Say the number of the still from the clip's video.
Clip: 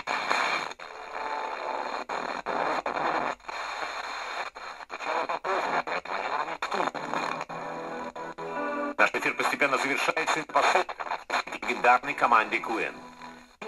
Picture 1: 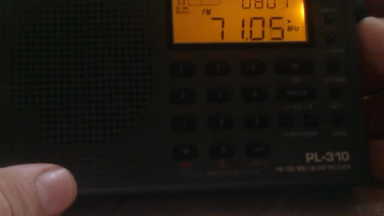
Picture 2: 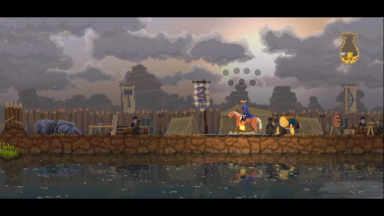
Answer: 1